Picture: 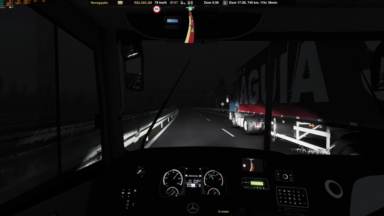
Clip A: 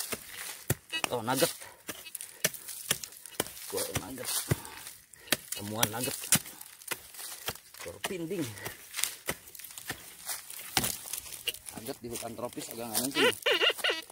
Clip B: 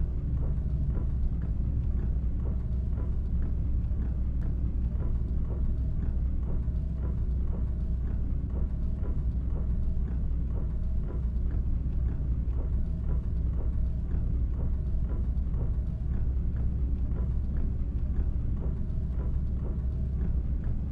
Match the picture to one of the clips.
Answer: B